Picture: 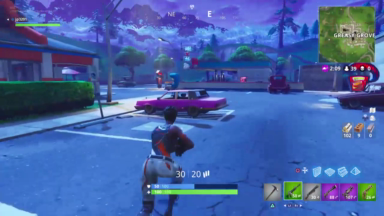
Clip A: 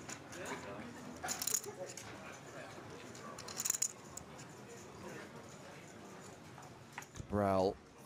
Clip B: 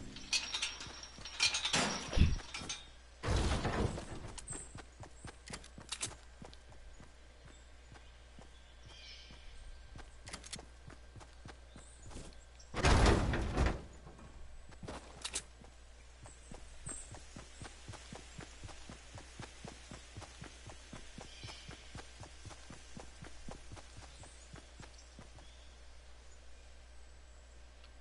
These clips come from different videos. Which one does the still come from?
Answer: B